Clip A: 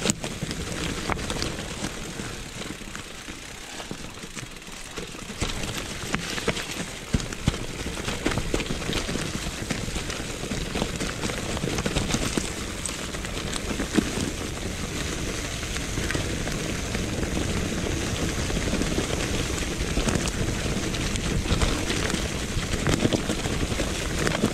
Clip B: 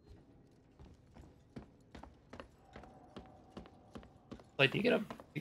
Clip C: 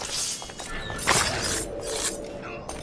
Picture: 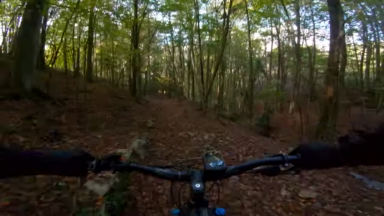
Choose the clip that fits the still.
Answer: A